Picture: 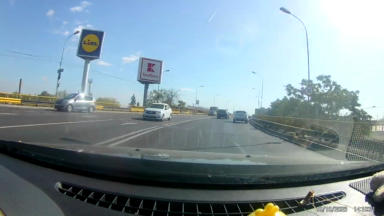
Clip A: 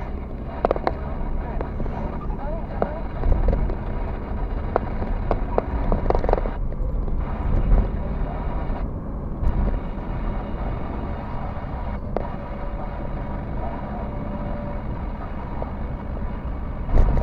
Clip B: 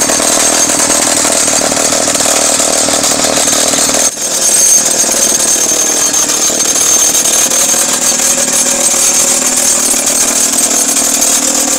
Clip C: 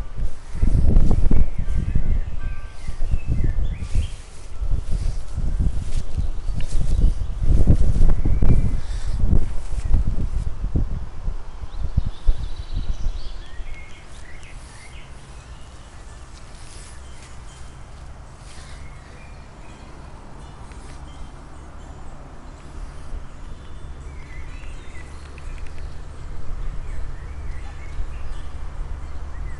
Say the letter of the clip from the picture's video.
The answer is A